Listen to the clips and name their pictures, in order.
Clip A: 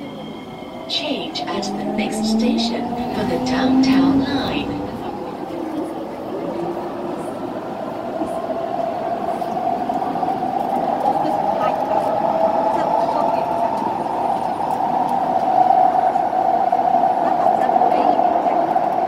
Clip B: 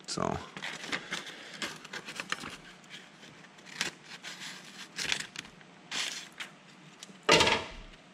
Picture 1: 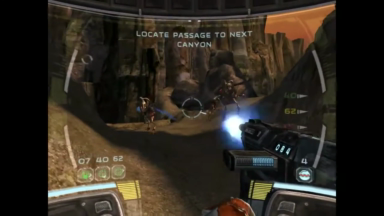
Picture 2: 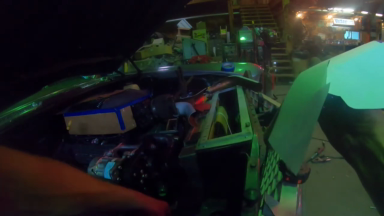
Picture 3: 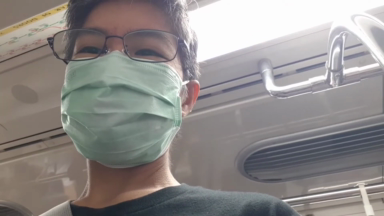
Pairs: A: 3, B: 2